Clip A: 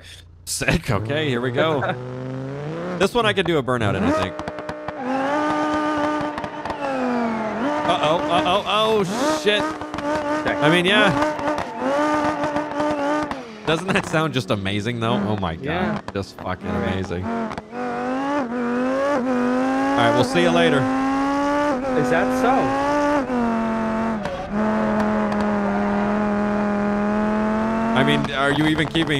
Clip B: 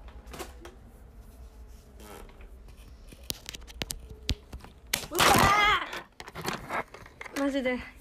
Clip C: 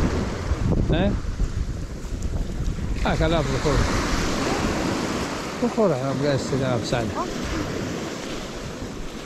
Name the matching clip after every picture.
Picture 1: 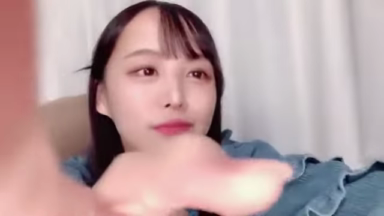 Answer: B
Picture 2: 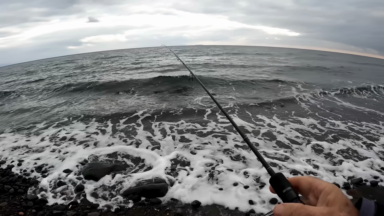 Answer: C